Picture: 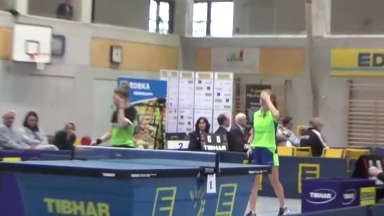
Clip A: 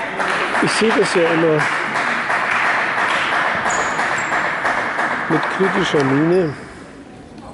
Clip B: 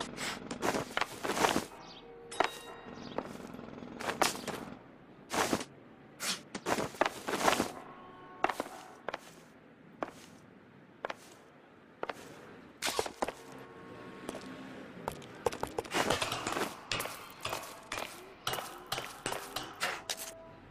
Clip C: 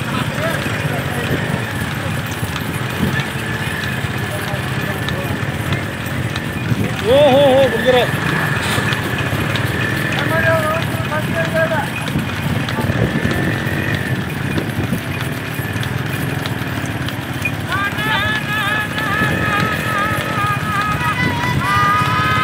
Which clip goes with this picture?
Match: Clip A